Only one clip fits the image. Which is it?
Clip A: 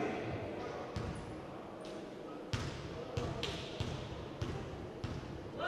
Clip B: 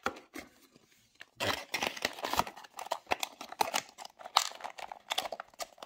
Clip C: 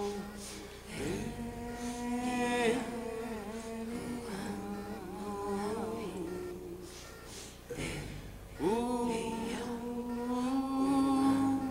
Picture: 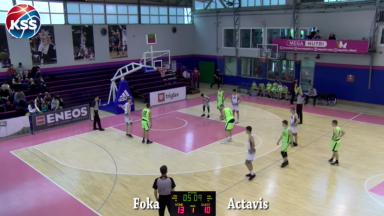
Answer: A